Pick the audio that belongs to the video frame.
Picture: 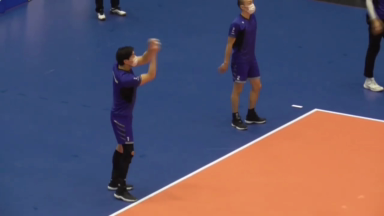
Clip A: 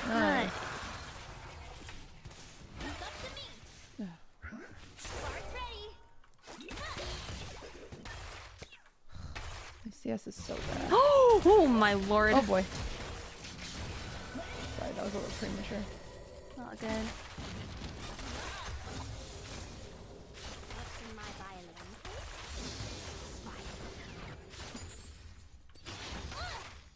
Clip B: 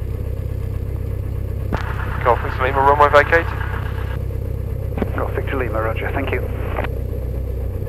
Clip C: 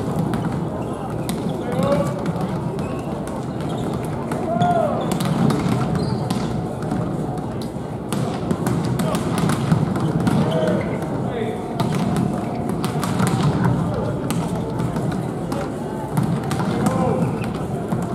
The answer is C